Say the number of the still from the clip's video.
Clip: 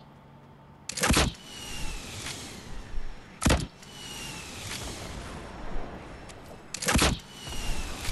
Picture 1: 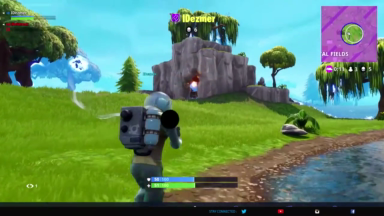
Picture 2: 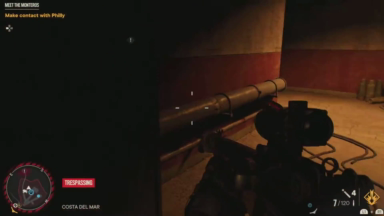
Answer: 1